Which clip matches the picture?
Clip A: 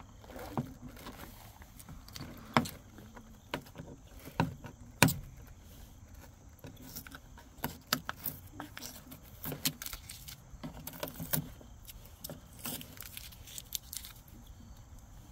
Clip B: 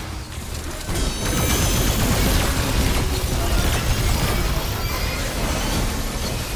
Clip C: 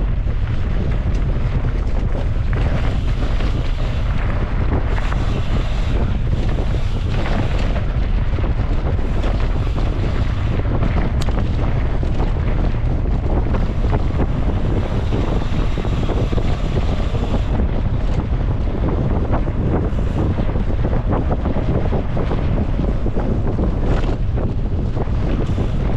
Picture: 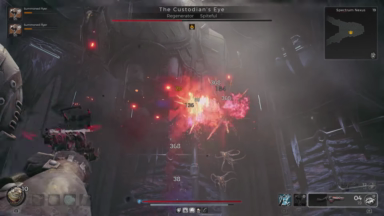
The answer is B